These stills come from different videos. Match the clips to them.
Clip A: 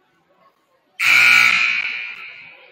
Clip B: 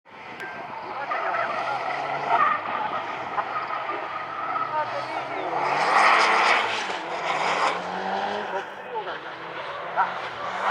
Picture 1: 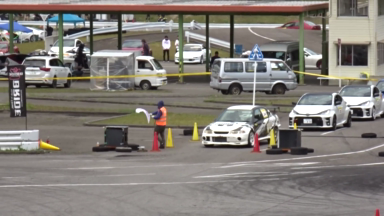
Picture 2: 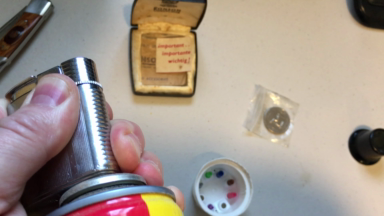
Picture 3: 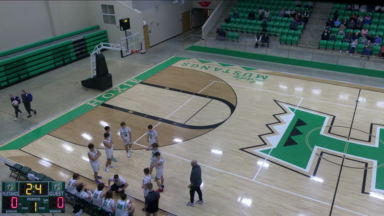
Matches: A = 3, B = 1